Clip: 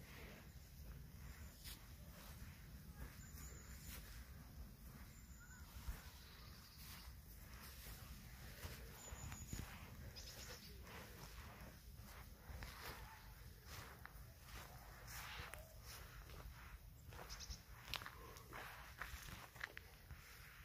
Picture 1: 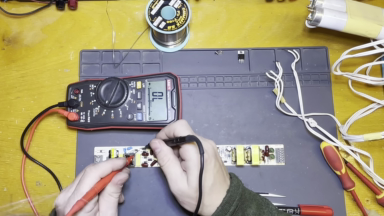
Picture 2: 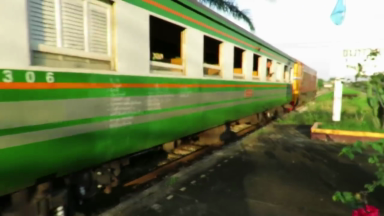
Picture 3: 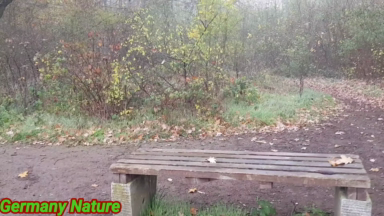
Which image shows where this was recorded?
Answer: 3